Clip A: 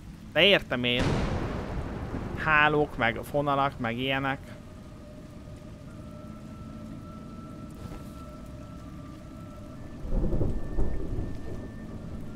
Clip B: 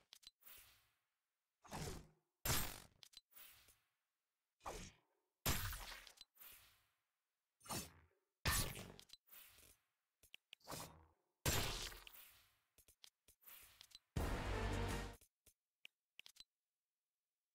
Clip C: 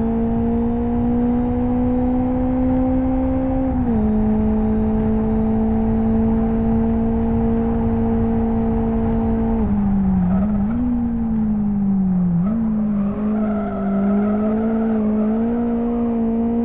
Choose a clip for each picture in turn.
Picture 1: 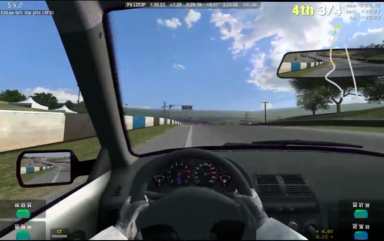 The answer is C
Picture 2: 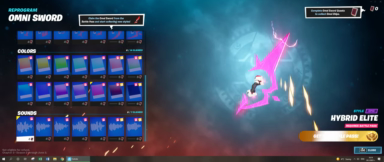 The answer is B